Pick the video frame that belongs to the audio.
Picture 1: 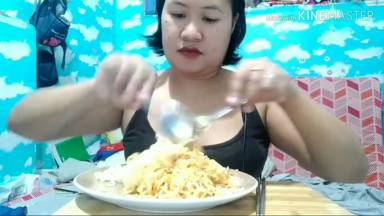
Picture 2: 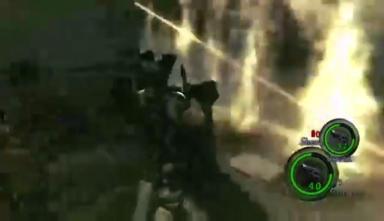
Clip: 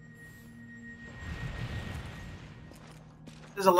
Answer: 2